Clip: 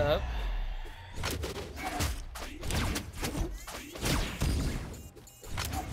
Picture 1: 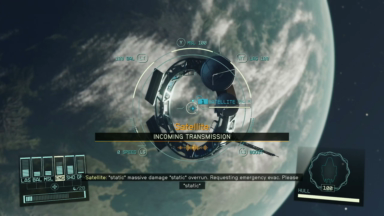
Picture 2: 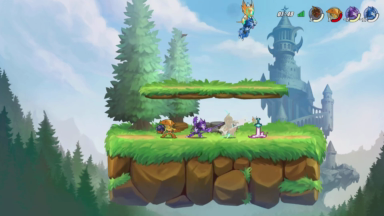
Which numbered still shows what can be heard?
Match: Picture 2